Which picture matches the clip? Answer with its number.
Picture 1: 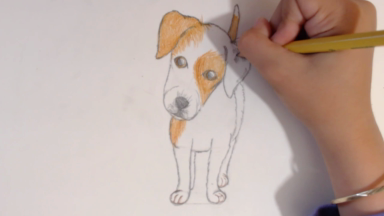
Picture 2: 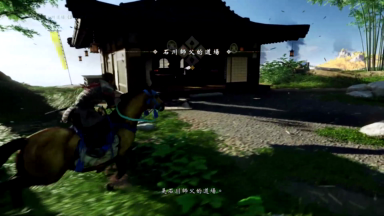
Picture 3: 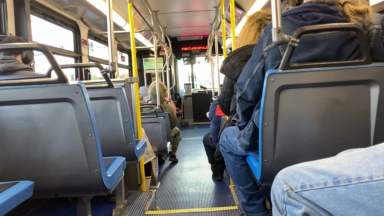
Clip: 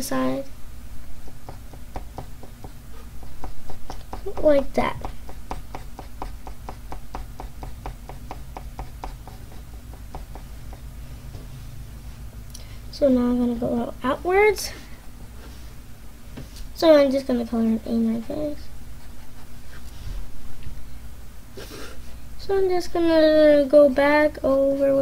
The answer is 1